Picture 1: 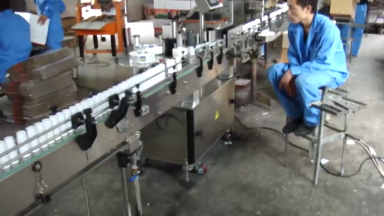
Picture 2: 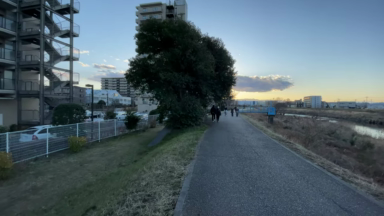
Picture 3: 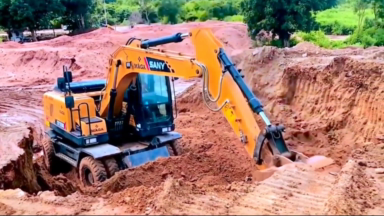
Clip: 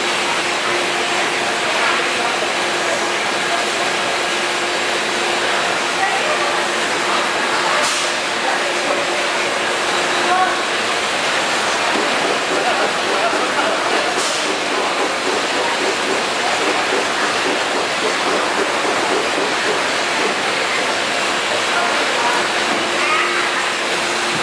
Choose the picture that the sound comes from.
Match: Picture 1